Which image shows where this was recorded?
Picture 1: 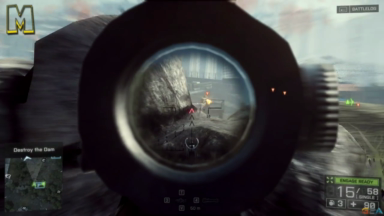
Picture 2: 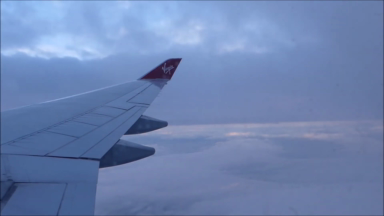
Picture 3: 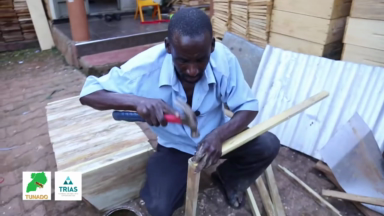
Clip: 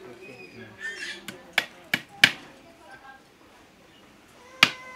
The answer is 3